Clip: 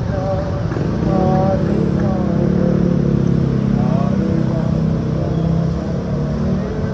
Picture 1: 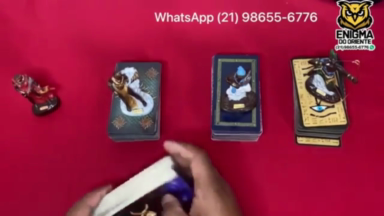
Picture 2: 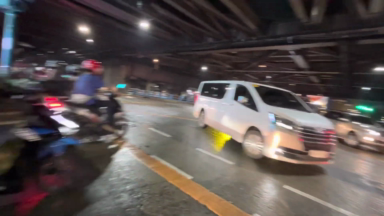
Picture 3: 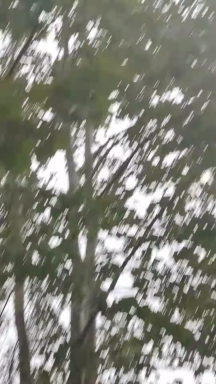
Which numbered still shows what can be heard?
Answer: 2